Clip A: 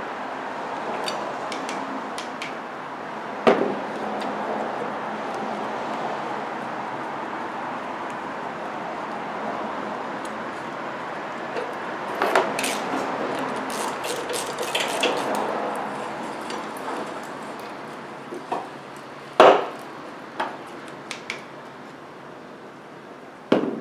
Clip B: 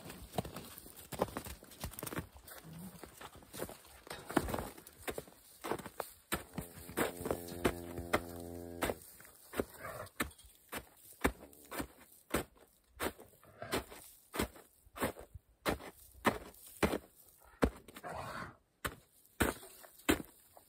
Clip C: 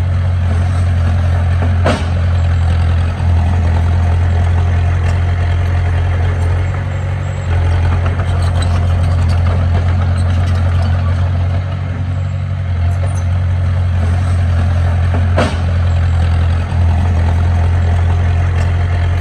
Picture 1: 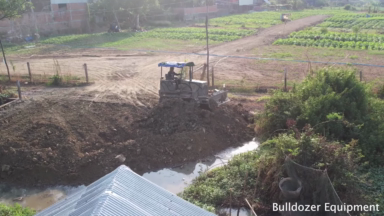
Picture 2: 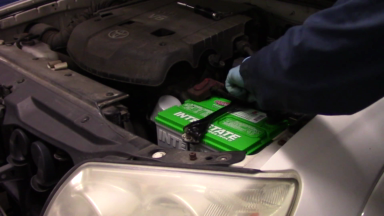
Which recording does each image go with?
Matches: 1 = C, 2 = A